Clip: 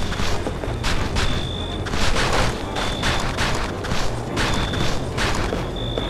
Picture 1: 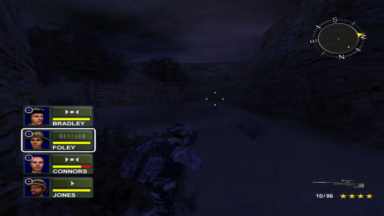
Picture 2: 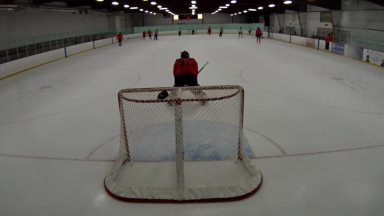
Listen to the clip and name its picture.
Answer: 1